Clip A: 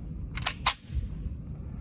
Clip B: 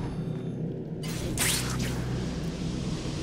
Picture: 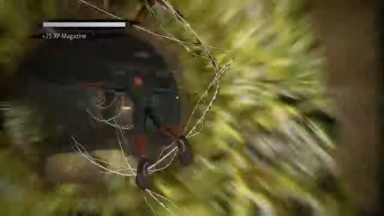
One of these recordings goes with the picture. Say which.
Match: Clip B